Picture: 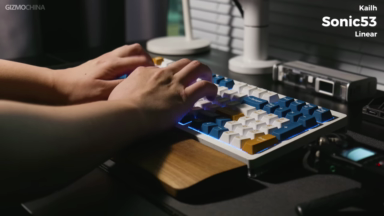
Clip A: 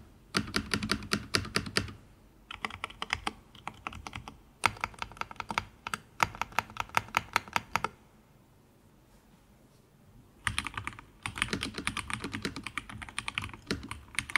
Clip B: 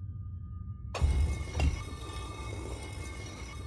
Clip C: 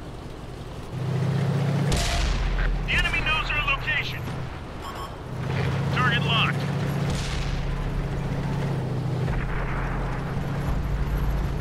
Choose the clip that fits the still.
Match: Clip A